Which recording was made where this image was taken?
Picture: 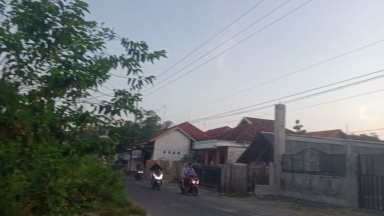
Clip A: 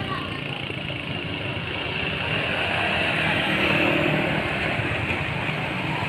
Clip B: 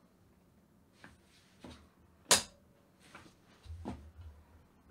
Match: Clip A